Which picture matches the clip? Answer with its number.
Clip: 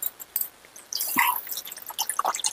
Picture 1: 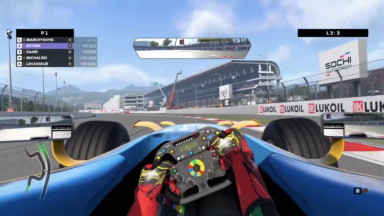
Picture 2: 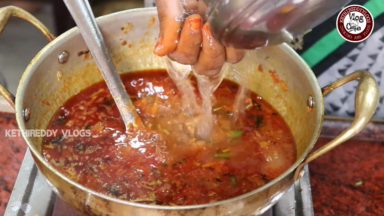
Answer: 2